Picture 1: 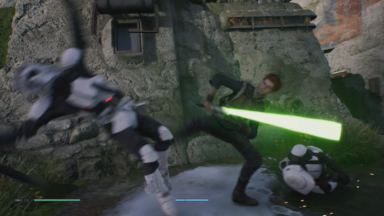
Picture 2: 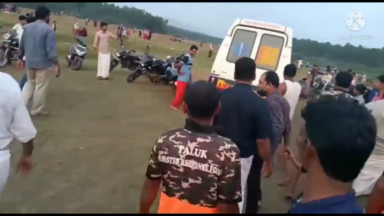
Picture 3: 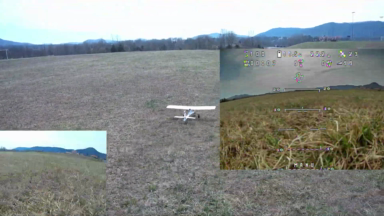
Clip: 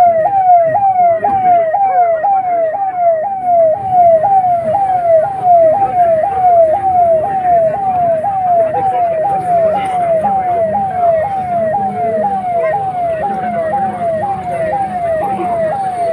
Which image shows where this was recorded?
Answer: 2